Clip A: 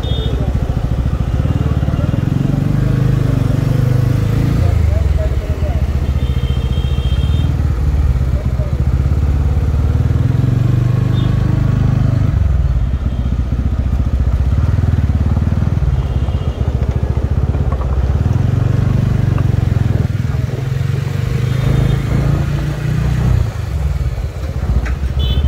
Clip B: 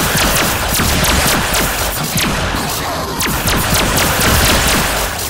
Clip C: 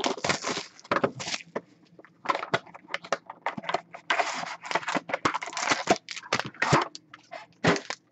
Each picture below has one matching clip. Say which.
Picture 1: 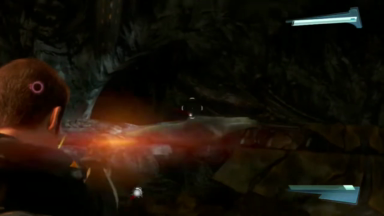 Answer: B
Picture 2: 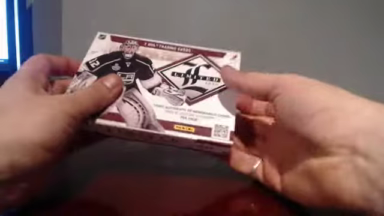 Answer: C